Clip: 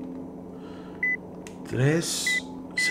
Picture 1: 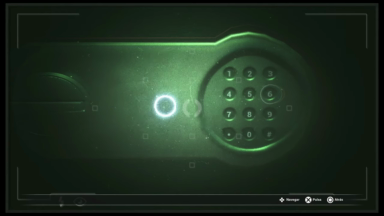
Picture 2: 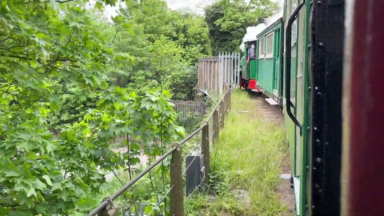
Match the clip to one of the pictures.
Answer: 1